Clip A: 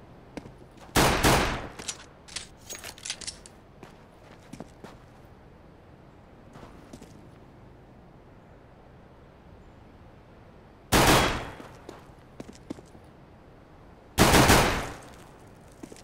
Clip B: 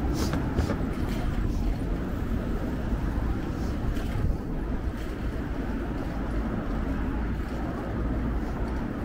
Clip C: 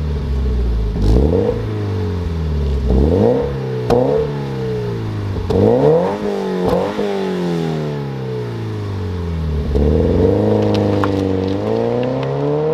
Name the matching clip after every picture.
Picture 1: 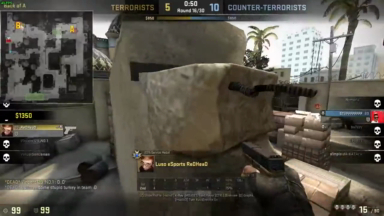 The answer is A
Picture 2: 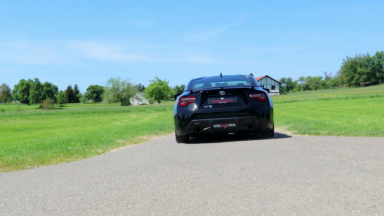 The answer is C